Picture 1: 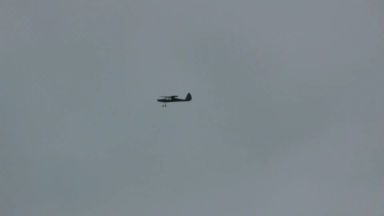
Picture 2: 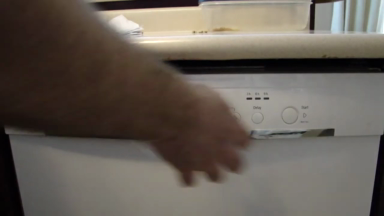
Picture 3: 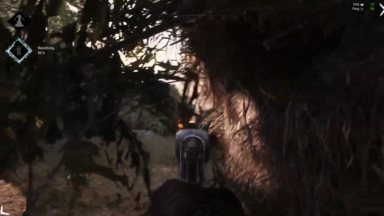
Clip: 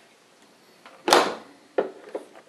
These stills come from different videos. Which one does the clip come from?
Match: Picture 2